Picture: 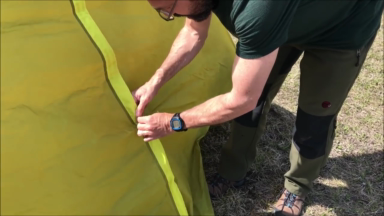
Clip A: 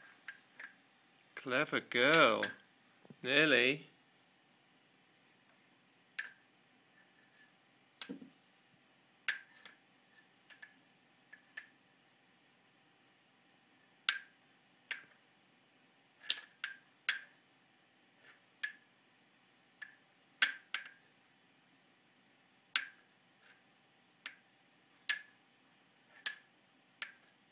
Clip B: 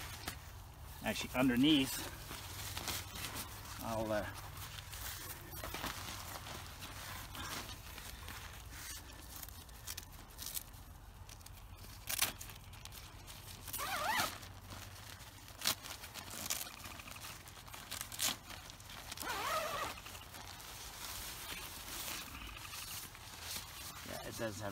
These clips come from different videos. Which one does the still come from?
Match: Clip B